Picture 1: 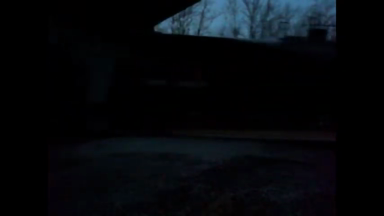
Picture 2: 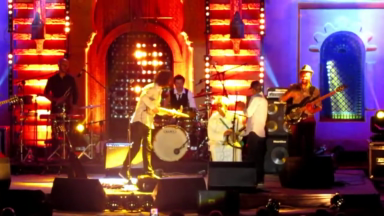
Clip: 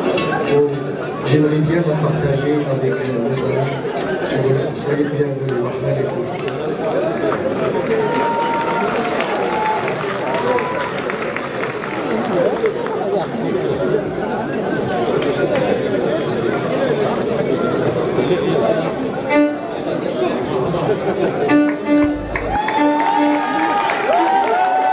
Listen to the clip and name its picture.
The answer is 2